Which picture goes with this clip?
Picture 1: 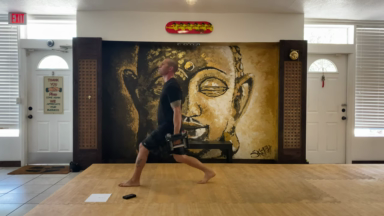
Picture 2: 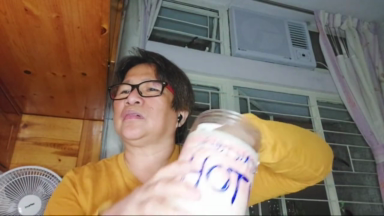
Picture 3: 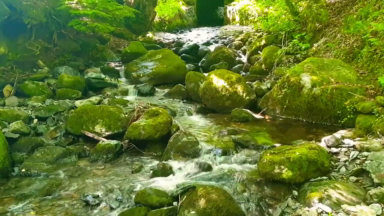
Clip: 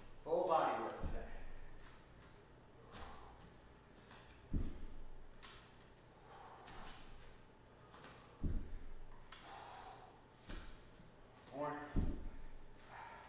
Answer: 1